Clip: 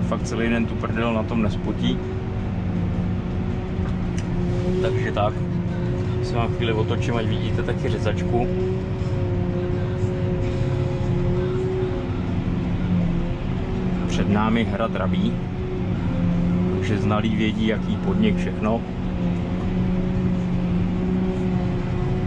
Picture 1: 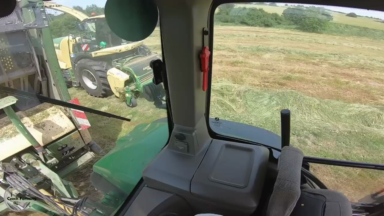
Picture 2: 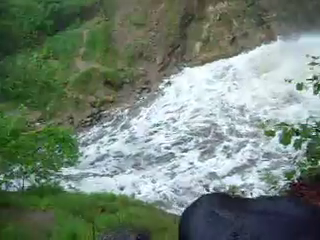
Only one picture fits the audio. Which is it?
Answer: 1